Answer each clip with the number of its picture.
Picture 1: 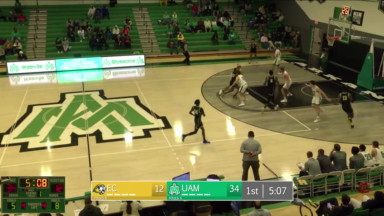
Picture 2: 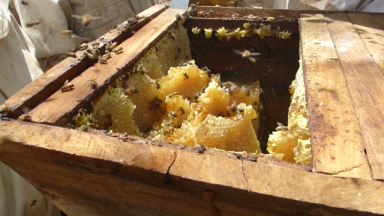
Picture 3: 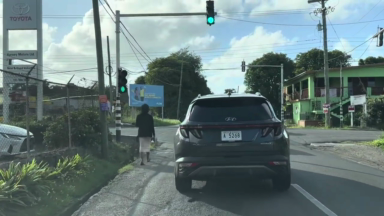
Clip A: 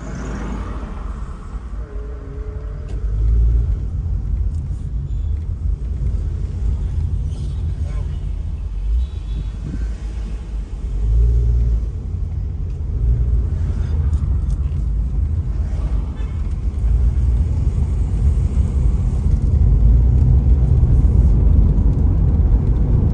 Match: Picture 3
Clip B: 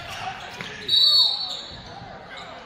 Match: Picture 1